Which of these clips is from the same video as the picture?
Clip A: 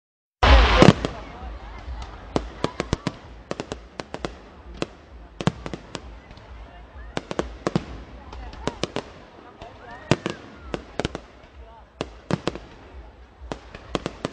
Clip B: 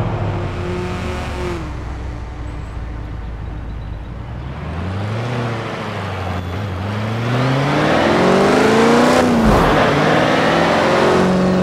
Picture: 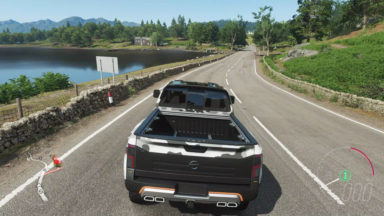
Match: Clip B